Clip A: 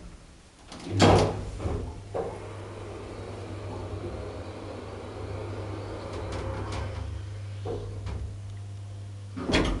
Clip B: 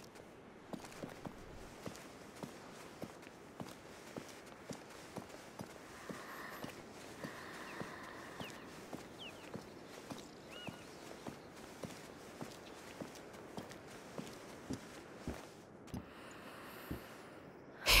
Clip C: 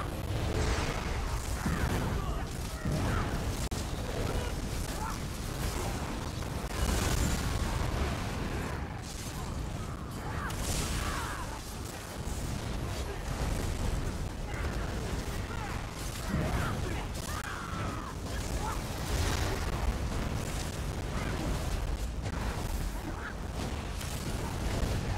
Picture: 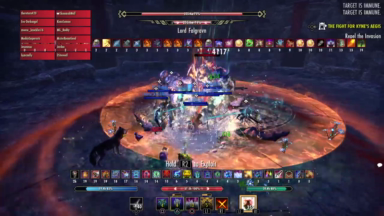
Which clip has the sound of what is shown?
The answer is C